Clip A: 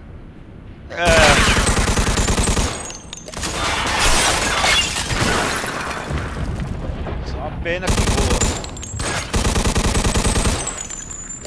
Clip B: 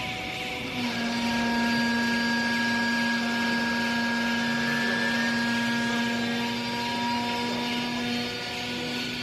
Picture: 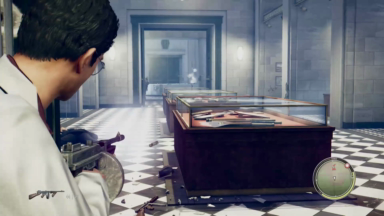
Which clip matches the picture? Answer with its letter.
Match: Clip A